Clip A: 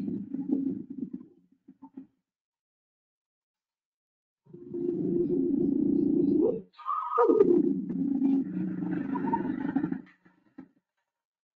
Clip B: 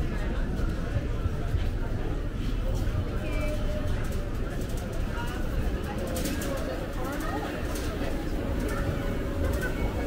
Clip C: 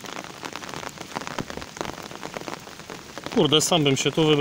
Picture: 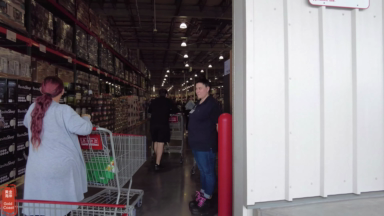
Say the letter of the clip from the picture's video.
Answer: B